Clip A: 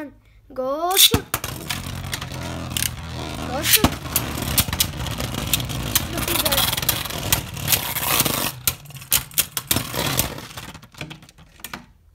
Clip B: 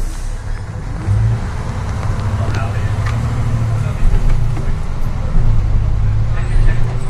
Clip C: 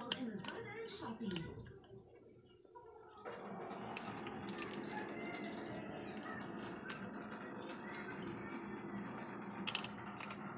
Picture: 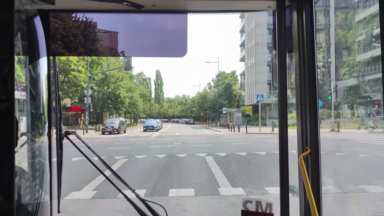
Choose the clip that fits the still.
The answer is B